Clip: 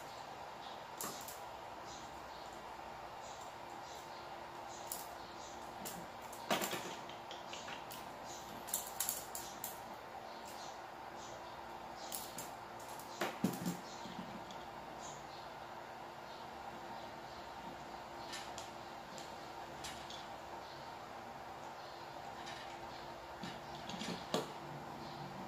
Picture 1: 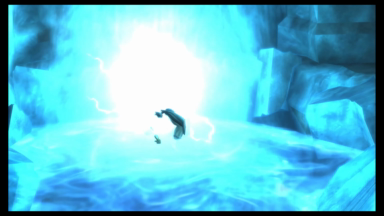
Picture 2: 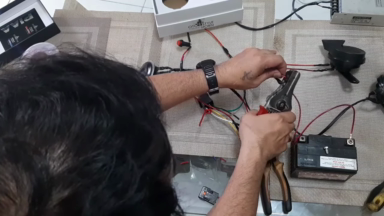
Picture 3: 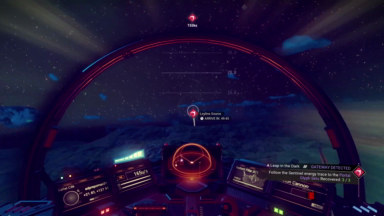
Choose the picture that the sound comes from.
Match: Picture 2